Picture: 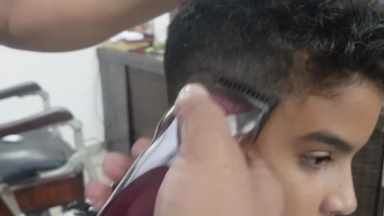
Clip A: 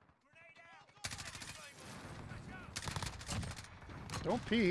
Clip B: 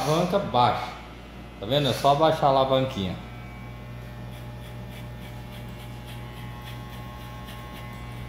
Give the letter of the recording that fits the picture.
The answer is B